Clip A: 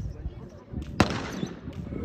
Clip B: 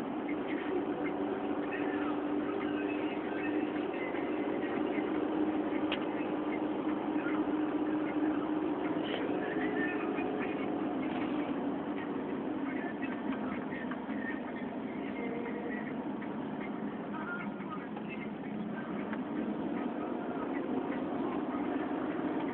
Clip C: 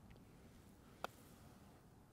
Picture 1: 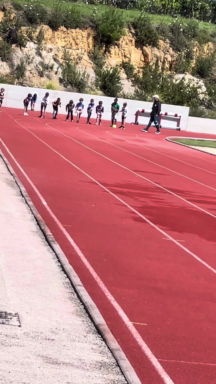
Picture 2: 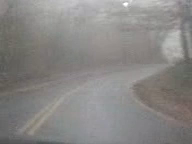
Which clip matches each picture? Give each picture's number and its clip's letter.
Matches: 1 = A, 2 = B